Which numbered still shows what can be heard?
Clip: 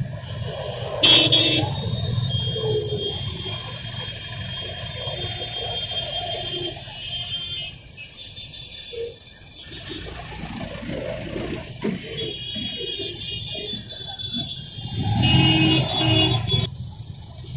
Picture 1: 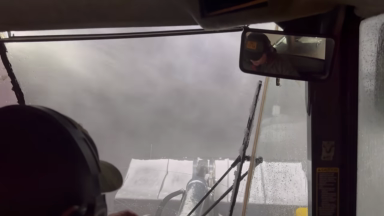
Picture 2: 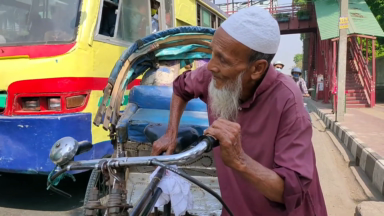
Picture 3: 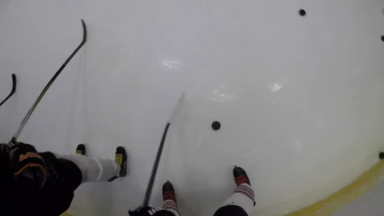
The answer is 2